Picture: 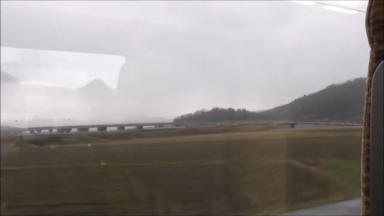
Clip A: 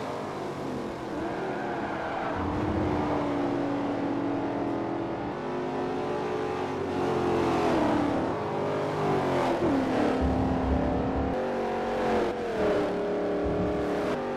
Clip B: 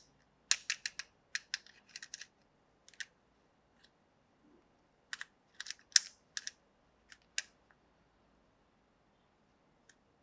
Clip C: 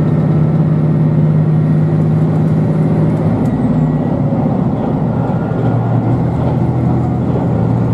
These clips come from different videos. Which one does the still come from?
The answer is C